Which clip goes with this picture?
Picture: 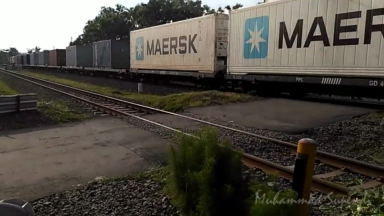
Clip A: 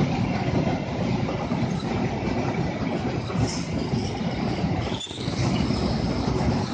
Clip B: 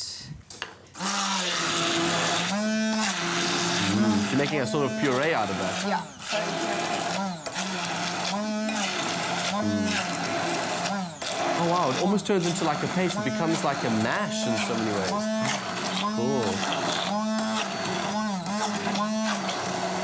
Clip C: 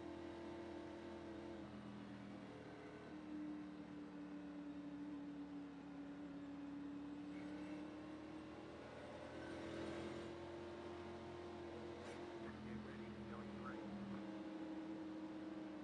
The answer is A